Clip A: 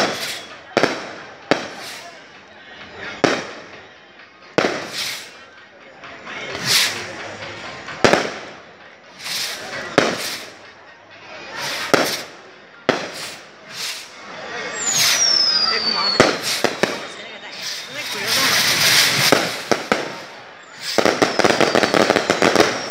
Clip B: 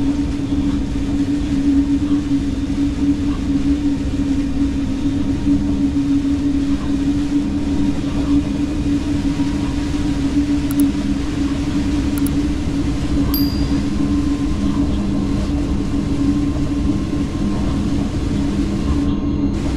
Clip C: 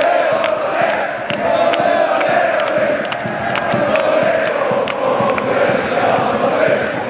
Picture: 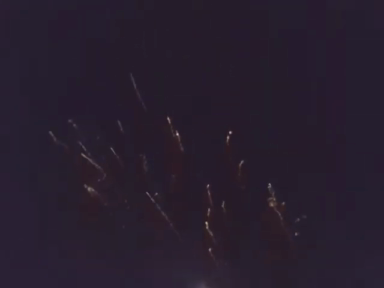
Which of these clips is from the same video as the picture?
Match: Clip A